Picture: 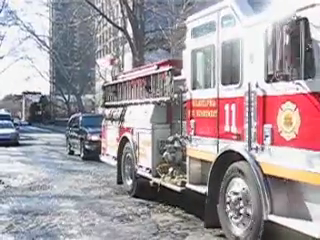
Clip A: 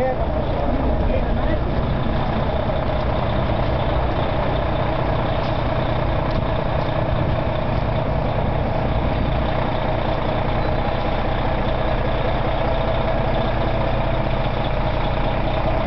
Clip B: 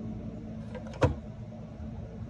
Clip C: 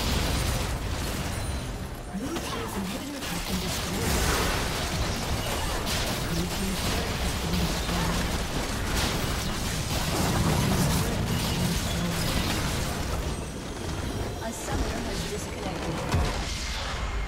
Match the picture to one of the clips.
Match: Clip A